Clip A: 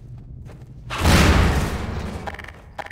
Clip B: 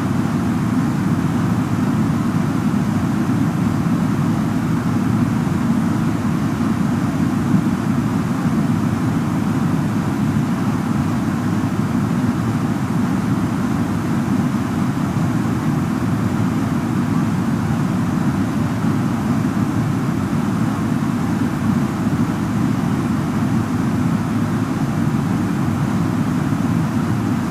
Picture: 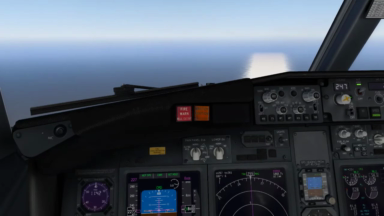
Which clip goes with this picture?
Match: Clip B